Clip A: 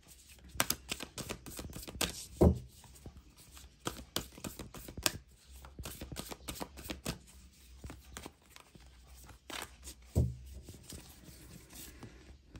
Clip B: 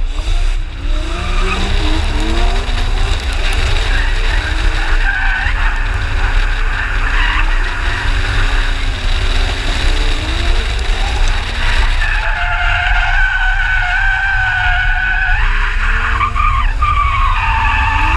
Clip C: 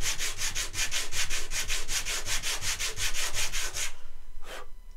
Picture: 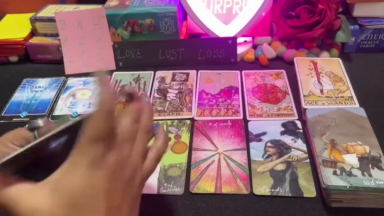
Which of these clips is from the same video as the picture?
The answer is A